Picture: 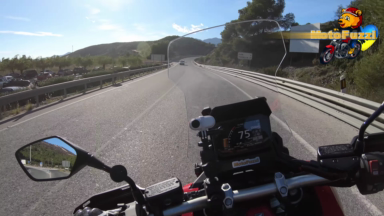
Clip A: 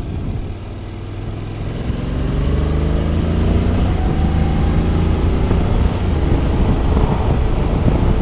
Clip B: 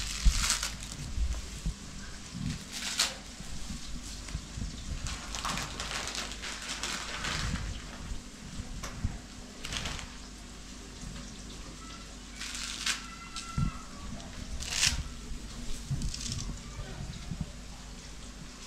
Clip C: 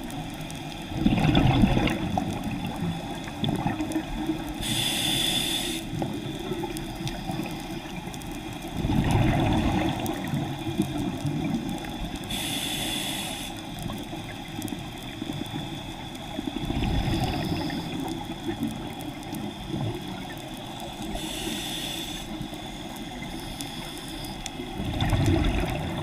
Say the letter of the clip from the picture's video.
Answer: A